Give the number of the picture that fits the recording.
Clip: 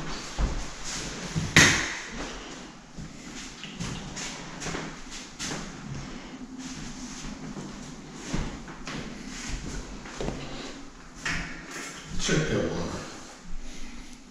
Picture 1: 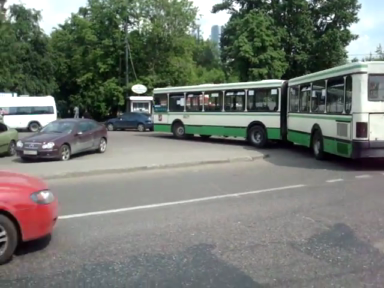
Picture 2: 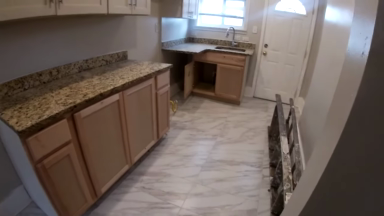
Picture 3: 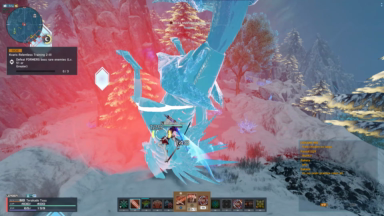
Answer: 2